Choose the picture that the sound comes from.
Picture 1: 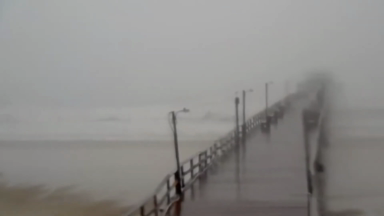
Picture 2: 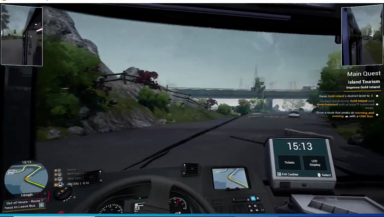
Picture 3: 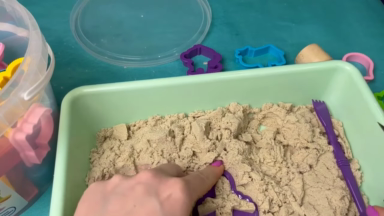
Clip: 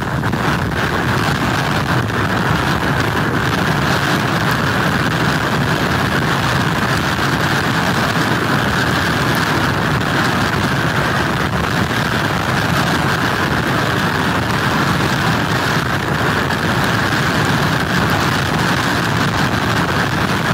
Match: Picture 1